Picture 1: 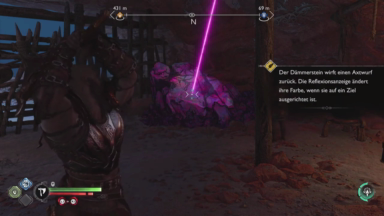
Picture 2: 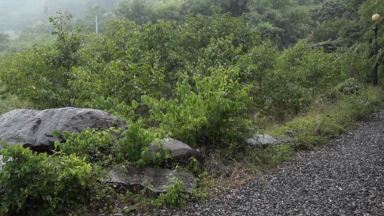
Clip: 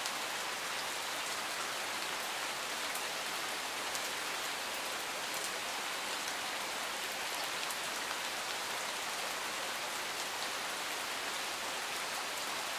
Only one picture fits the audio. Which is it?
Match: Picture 2